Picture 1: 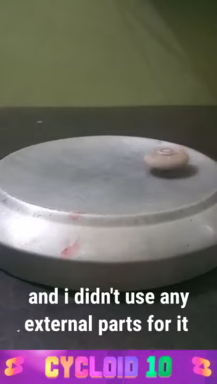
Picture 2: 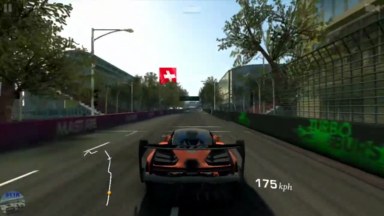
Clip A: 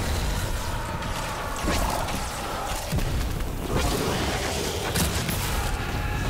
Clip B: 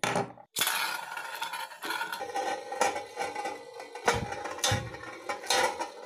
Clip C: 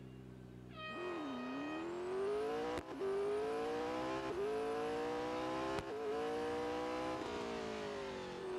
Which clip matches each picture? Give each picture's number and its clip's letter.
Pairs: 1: B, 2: C